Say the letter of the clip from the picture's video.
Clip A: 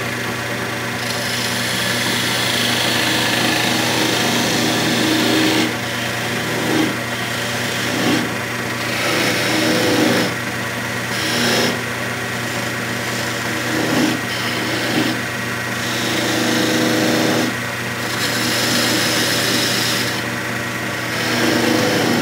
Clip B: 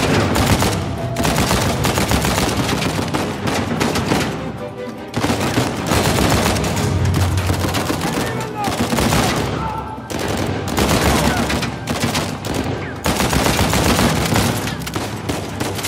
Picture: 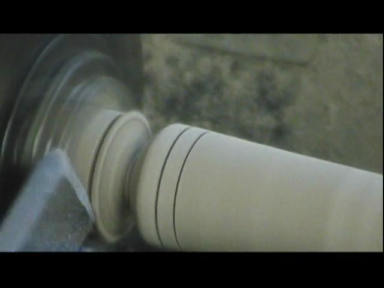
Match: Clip A